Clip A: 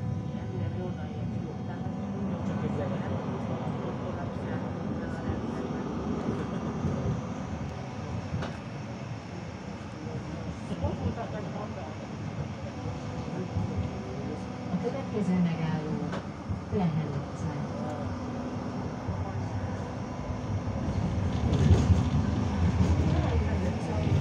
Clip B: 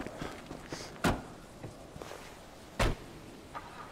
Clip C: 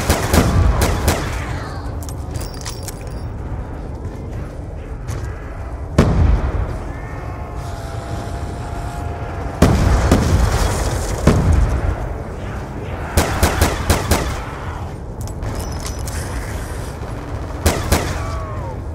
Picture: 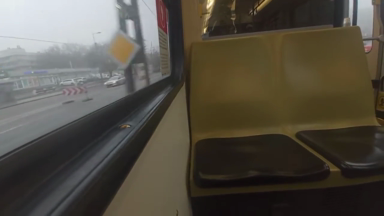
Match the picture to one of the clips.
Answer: A